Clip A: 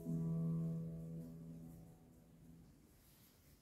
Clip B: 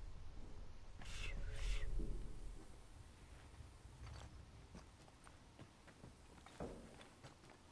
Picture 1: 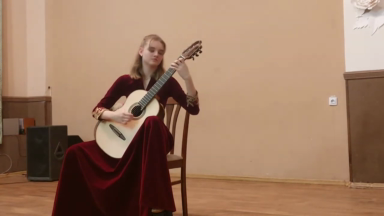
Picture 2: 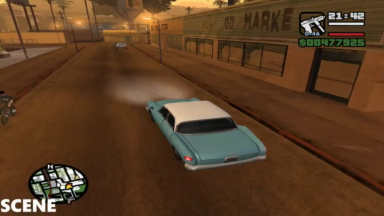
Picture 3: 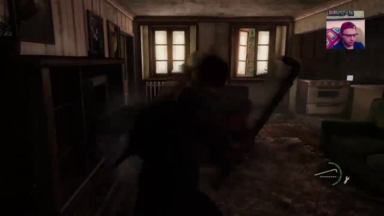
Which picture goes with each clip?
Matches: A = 1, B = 3